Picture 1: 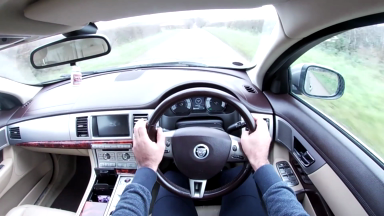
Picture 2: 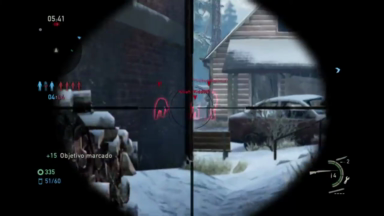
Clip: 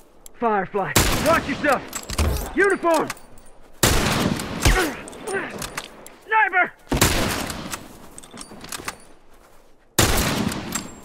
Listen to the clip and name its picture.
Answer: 2